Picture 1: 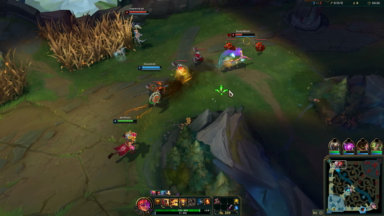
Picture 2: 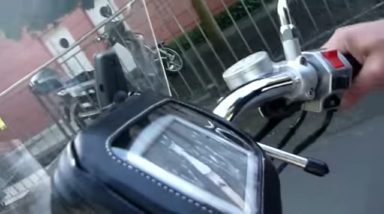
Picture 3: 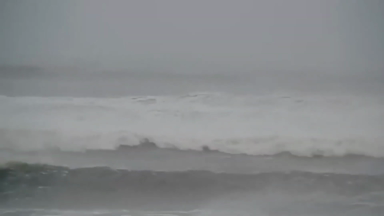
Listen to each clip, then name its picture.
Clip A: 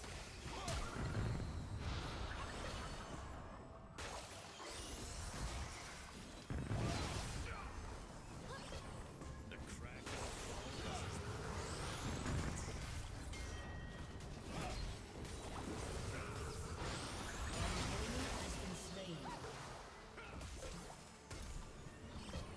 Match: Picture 1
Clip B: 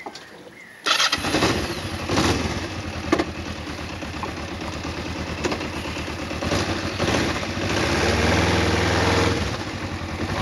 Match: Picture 2